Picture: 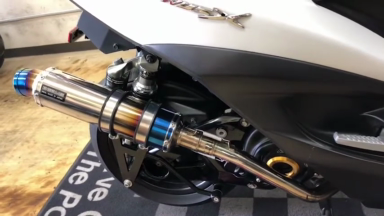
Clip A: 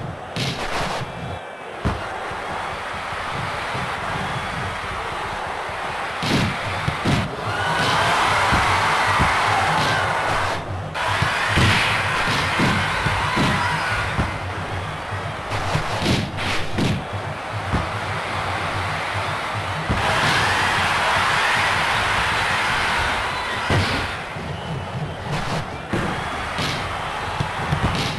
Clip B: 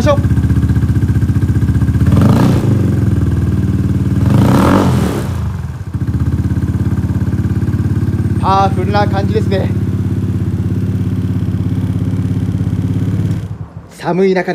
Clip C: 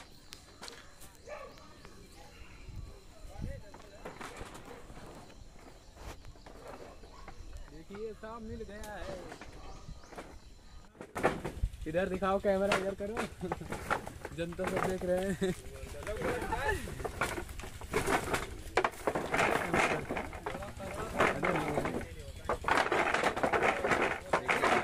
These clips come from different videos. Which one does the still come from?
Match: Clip B